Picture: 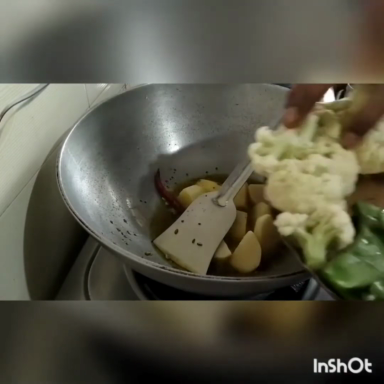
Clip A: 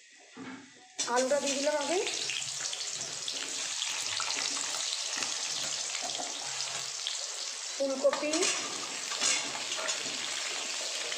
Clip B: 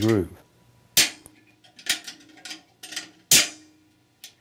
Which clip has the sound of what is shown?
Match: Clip A